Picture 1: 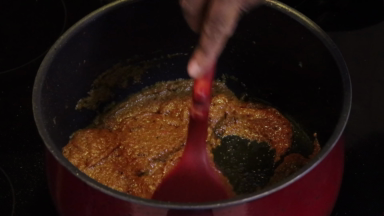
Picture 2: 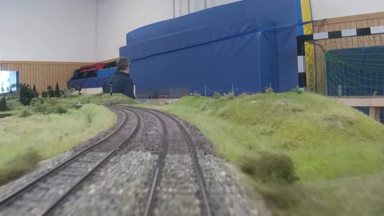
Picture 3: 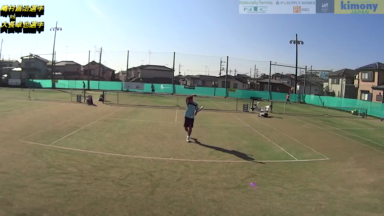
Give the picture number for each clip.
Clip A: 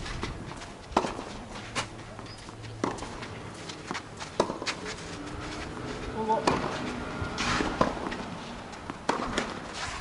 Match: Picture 3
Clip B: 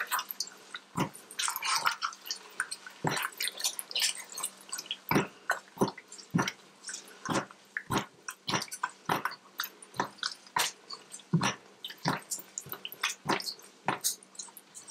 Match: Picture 1